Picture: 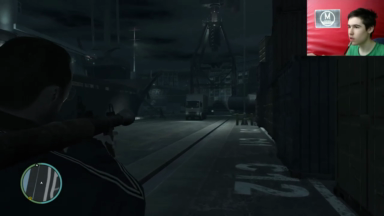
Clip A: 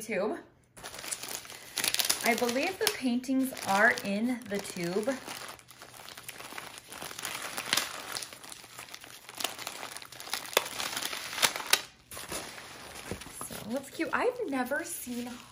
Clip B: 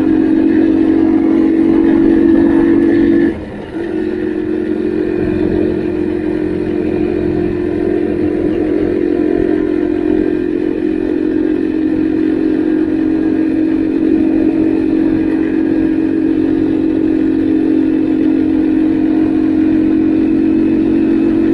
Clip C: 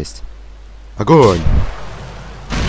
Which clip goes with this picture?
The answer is C